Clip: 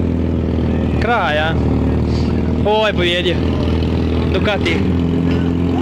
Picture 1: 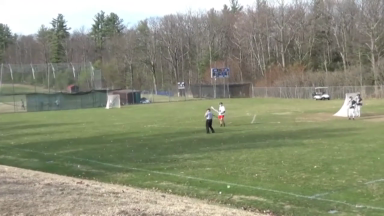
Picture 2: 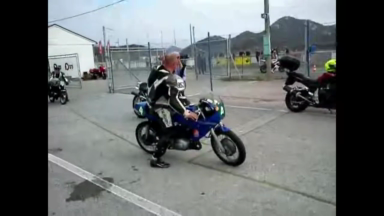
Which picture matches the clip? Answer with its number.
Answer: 2